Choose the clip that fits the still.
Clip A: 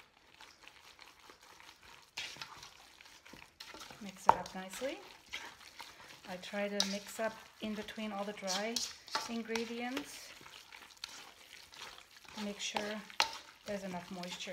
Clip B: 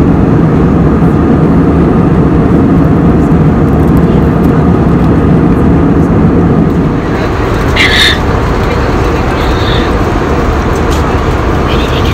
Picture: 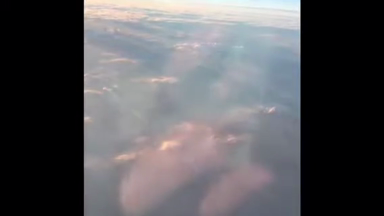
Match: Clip B